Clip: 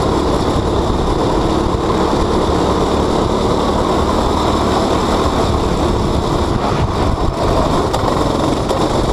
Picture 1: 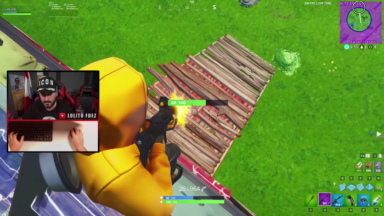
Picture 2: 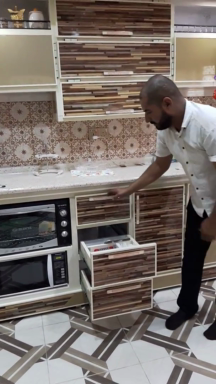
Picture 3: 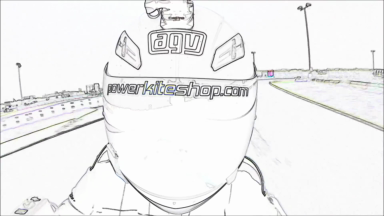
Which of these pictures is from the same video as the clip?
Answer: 3